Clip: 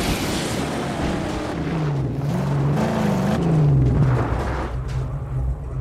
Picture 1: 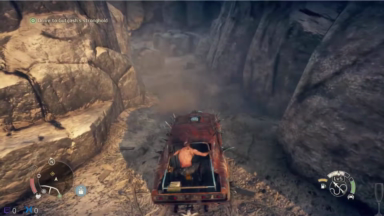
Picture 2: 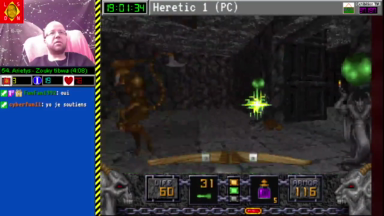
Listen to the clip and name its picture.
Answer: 1